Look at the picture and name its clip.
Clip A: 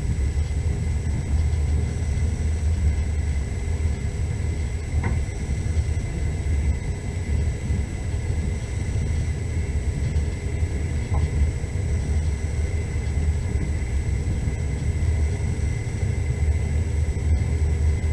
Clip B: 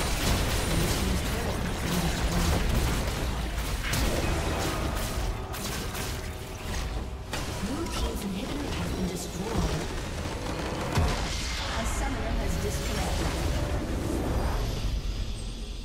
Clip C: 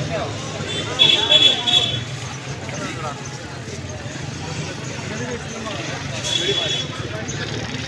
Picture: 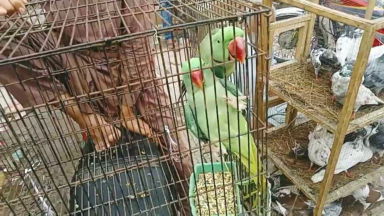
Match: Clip C